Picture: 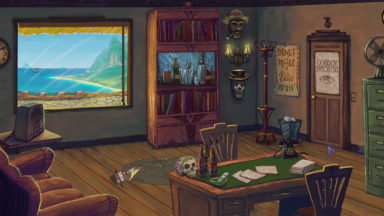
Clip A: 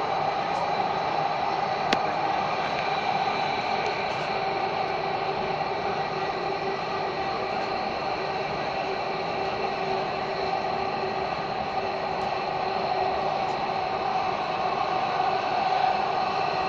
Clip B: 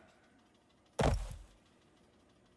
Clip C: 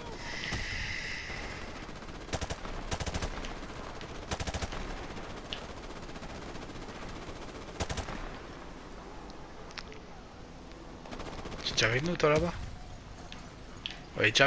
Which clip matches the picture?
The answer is B